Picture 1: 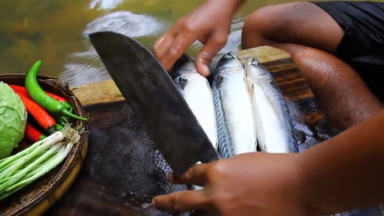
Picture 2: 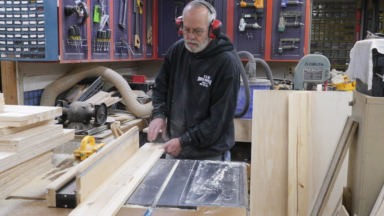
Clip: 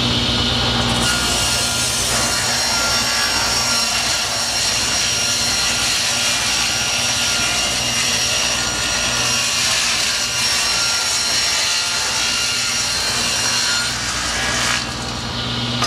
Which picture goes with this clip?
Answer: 2